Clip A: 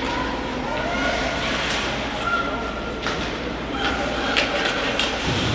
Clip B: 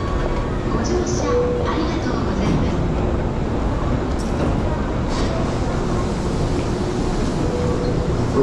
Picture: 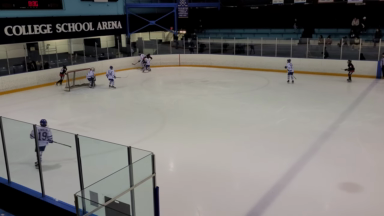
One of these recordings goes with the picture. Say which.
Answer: A